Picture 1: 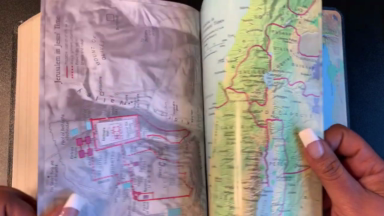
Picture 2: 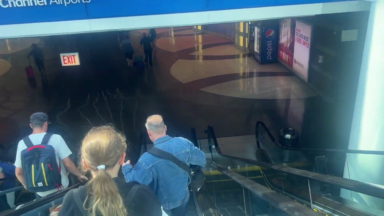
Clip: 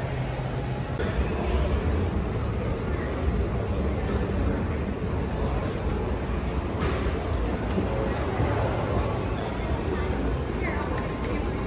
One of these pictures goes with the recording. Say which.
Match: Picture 2